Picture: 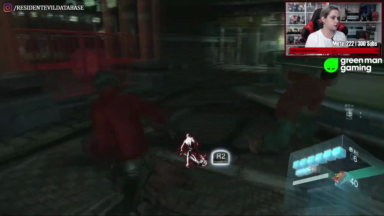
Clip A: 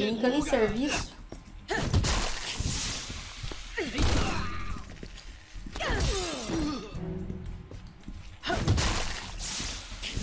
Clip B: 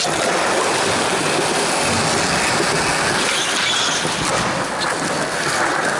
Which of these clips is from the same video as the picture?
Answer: A